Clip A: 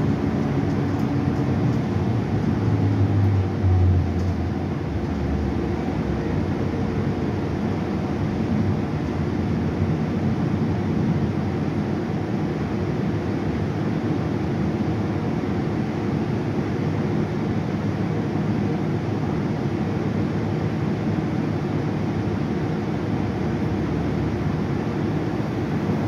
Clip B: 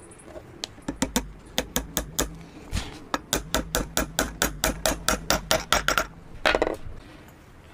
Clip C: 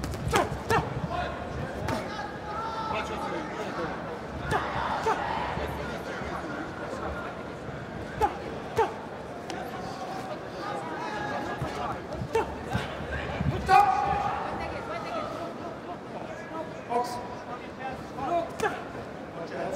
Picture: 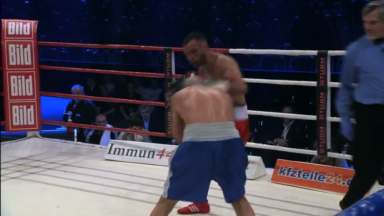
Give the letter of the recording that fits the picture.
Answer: C